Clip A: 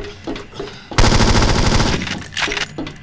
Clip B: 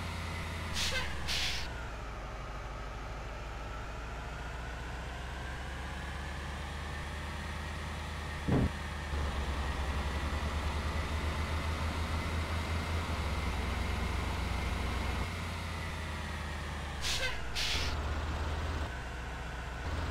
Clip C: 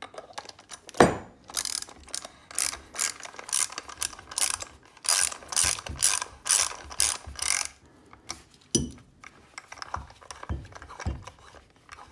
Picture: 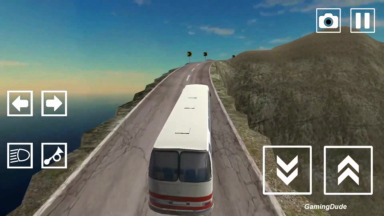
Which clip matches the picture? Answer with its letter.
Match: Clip B